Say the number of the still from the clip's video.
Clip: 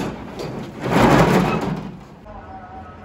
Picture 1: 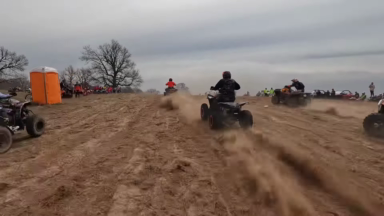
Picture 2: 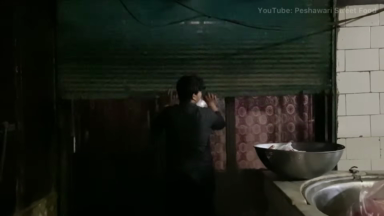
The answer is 2